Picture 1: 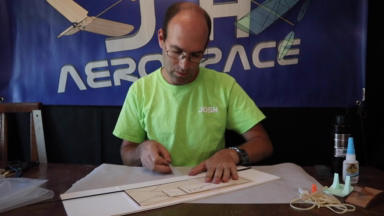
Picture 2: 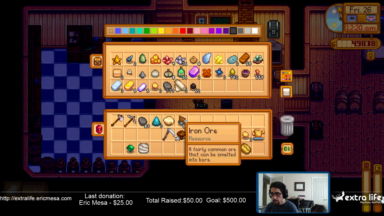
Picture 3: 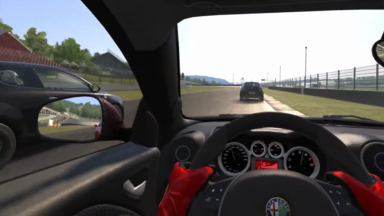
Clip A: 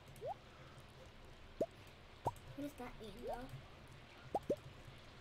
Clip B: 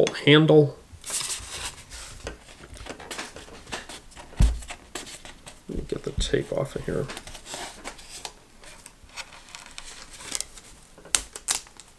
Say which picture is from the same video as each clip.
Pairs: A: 2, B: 1